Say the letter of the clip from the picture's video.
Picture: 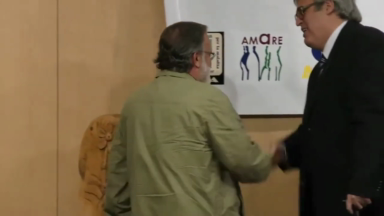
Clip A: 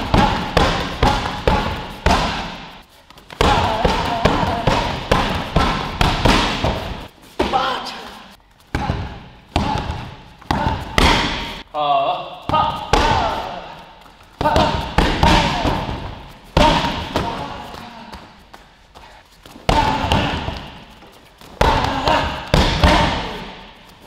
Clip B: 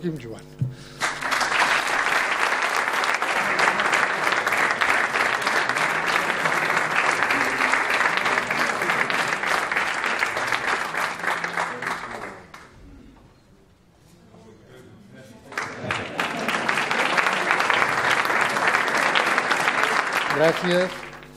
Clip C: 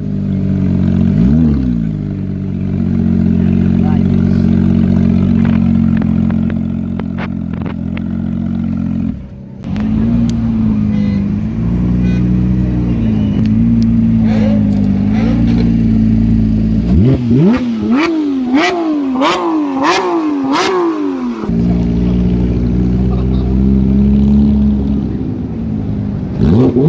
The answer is B